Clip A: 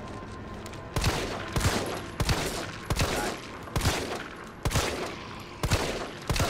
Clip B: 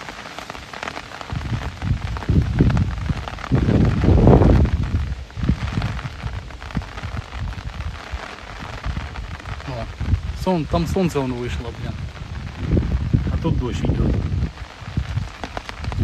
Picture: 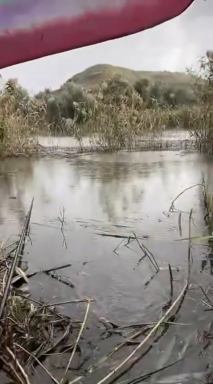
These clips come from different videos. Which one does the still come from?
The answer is B